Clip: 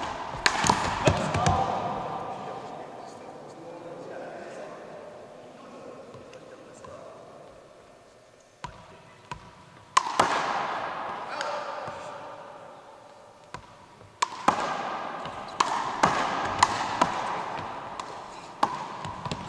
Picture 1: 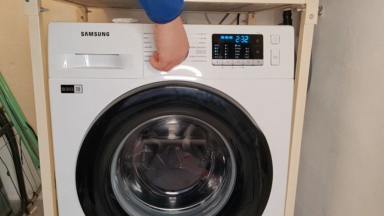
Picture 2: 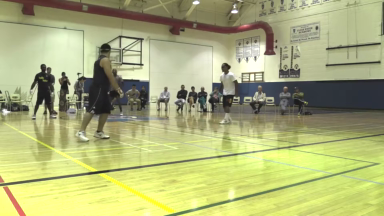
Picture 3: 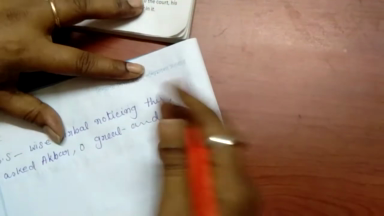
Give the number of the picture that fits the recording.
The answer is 2